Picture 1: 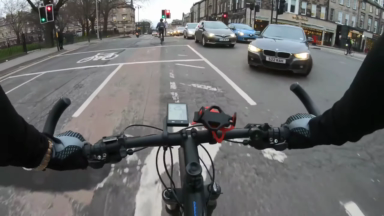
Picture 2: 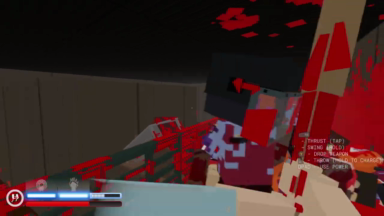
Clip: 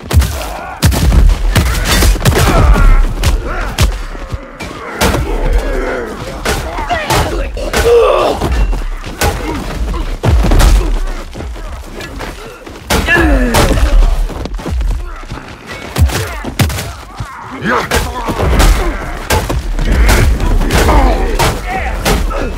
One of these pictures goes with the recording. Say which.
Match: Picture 2